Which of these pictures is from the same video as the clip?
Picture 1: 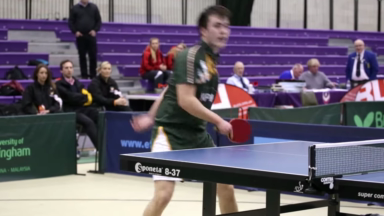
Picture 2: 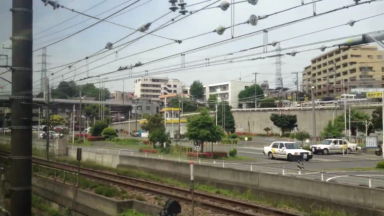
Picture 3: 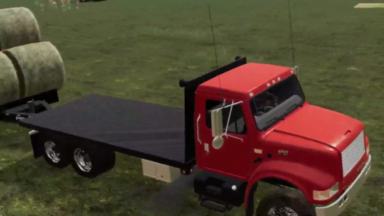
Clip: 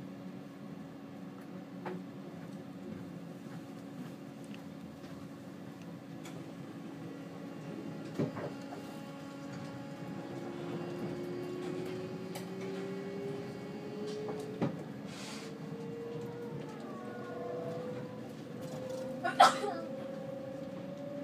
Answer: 2